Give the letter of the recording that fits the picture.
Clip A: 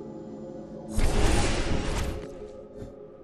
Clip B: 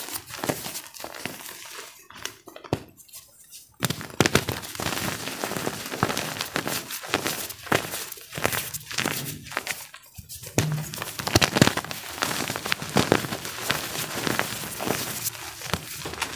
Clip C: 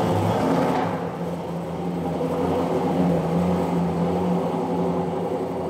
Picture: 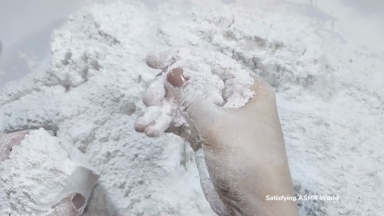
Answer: B